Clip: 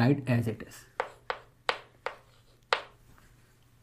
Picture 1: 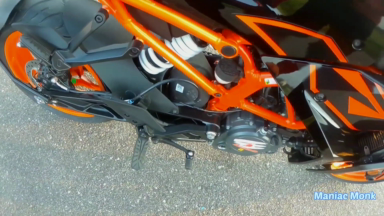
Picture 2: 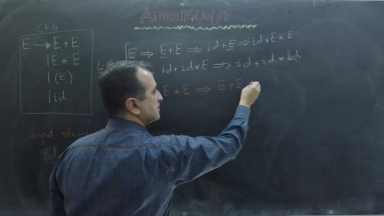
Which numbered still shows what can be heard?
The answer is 2